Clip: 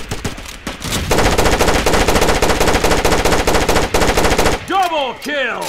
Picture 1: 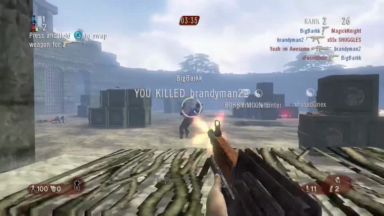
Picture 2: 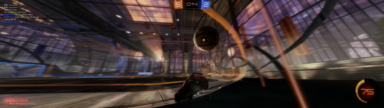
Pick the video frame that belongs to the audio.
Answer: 1